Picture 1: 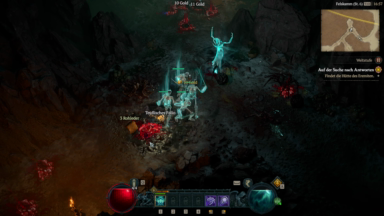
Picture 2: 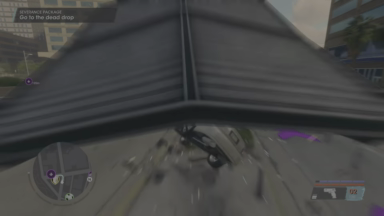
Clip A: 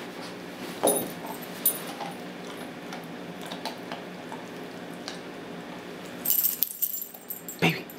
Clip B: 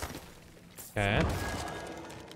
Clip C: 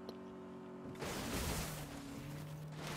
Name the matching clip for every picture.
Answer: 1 B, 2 C